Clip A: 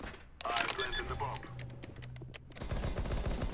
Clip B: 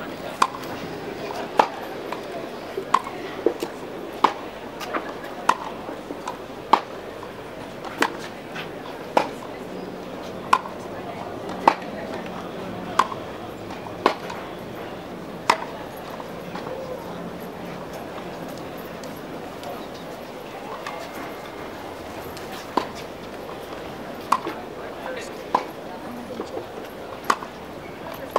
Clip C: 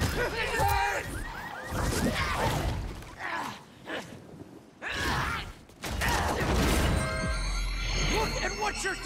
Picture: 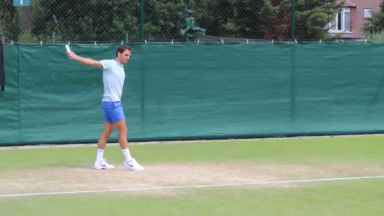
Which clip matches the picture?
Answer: B